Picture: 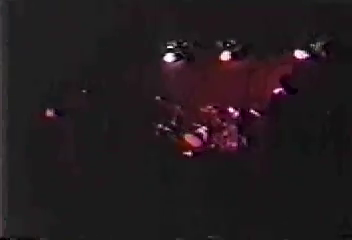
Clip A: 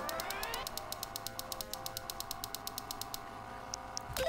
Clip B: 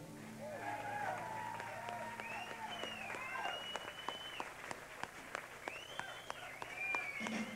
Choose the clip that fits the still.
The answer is B